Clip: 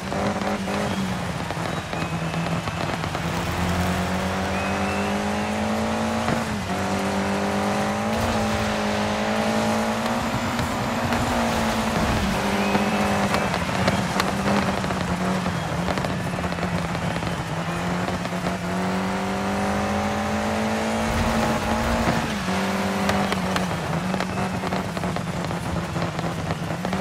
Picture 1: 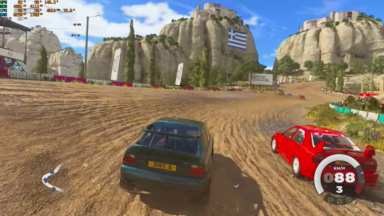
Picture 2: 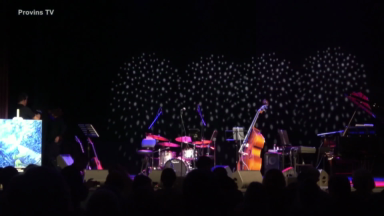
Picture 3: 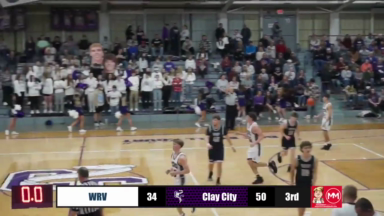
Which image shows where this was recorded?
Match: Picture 1